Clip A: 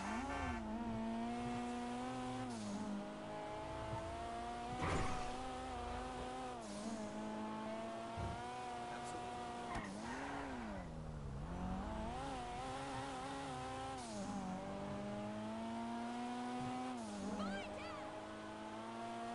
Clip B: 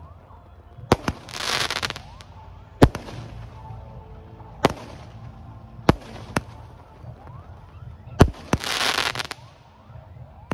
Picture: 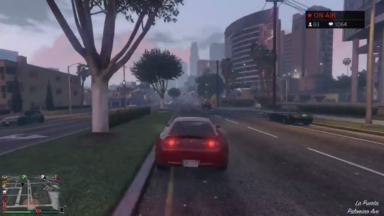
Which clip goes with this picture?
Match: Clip A